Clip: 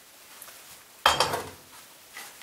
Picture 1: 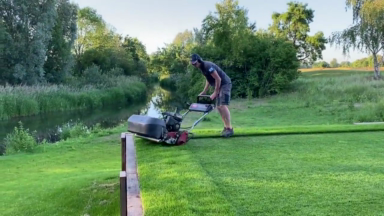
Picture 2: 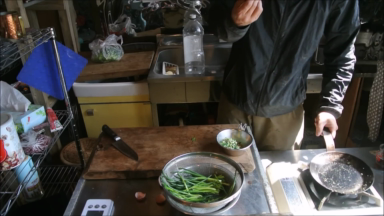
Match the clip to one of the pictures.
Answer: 2